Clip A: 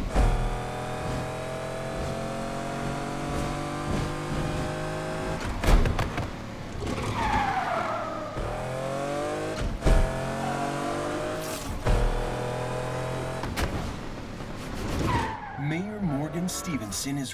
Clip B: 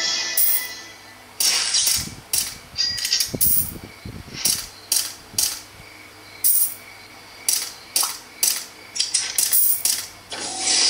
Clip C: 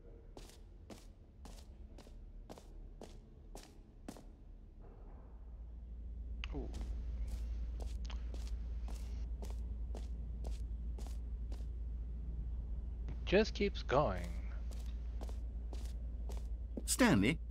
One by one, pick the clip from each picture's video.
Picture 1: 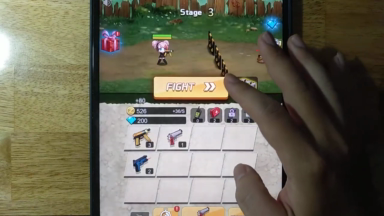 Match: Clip B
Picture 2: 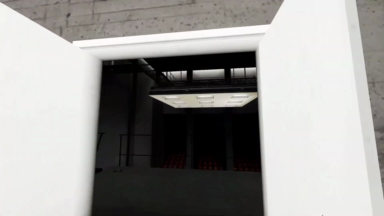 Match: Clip C